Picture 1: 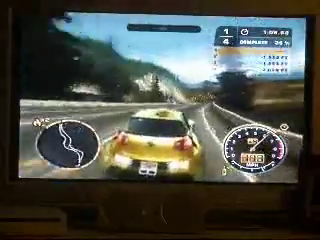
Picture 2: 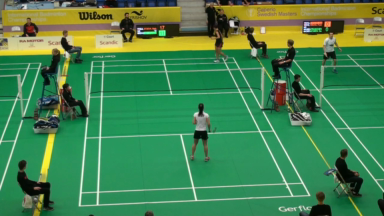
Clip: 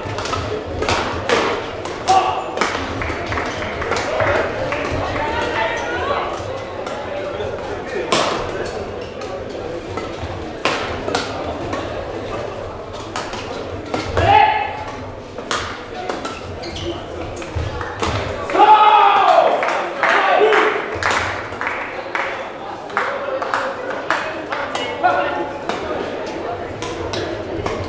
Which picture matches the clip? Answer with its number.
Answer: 2